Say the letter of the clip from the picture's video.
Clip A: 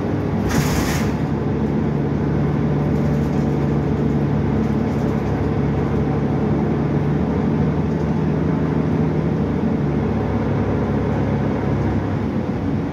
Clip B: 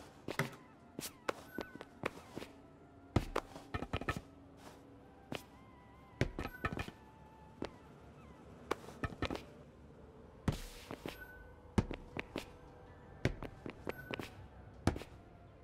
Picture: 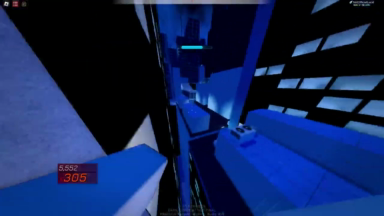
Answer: B